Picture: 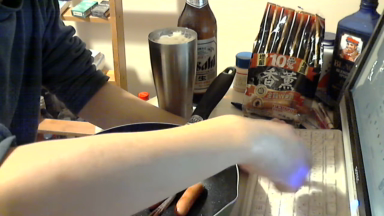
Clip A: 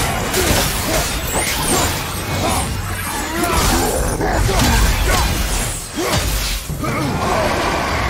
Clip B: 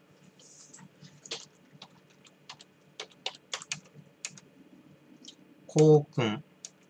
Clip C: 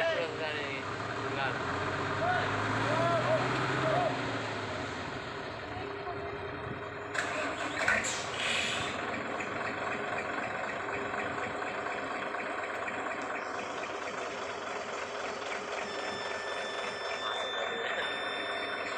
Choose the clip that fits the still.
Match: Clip B